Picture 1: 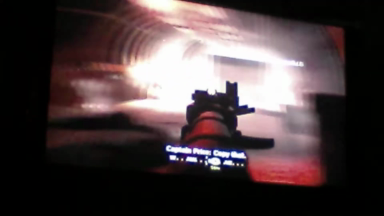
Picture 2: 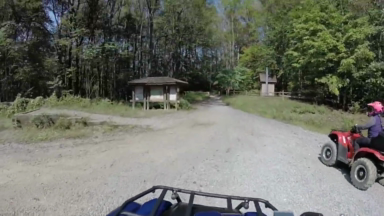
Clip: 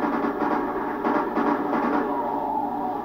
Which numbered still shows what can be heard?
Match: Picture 1